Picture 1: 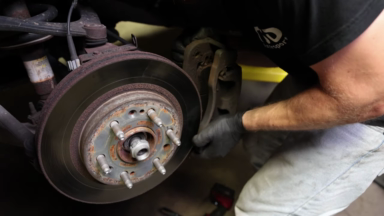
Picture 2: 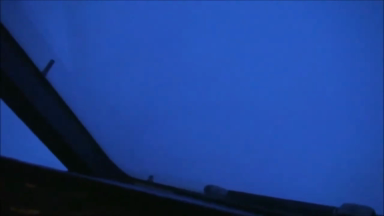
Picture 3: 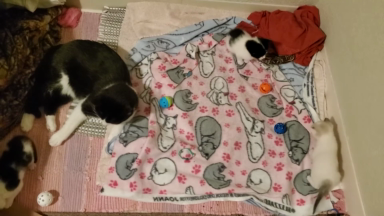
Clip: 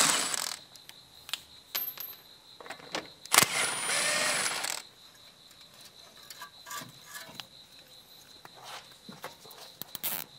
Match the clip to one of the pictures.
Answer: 1